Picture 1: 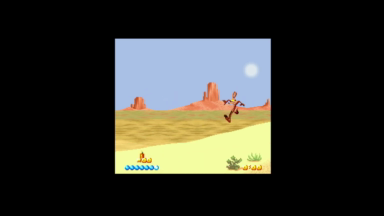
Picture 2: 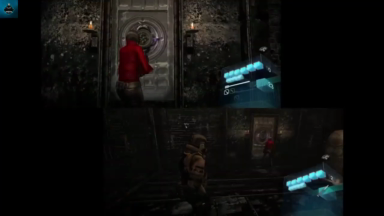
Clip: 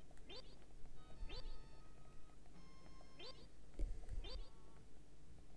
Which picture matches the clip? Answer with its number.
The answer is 1